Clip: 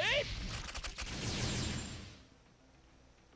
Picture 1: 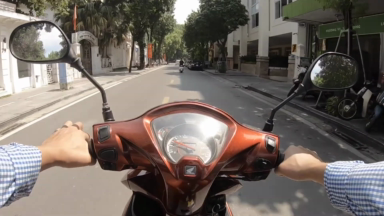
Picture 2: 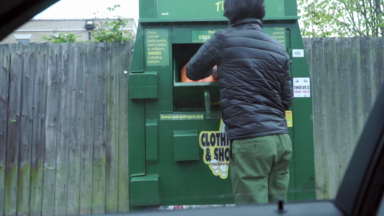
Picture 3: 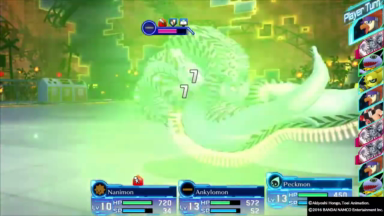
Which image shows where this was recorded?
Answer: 3